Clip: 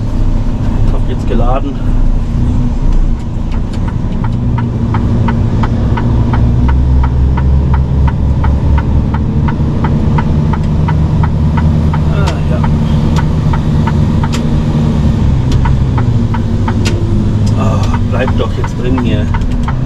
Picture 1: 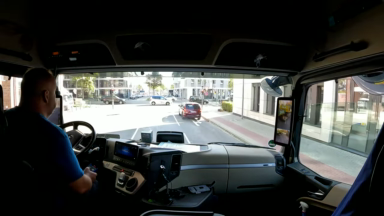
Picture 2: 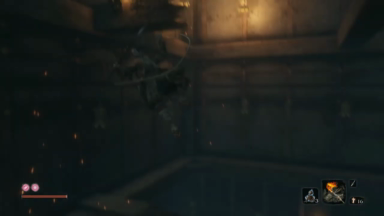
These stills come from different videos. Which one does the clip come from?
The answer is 1